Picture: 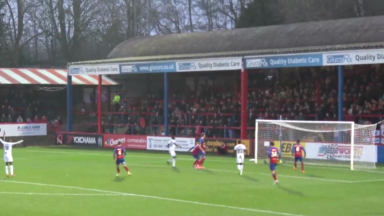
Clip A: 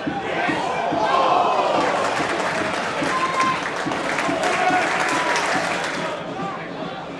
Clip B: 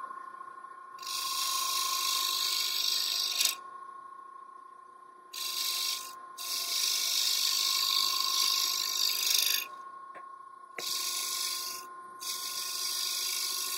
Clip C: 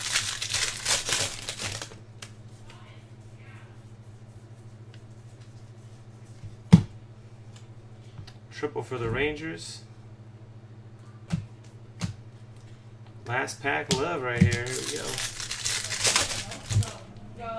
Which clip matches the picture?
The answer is A